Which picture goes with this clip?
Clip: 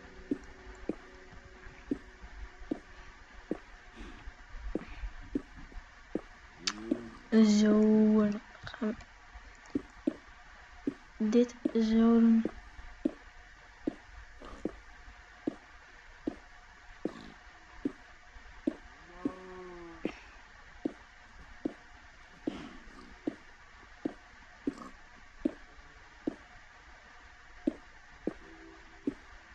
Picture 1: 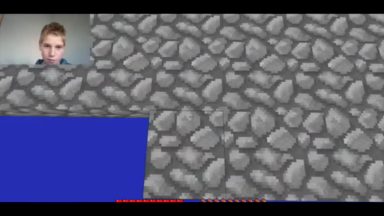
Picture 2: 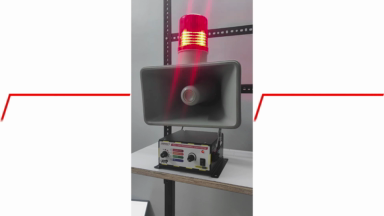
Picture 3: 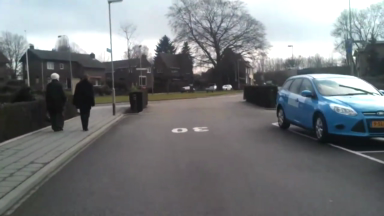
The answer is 1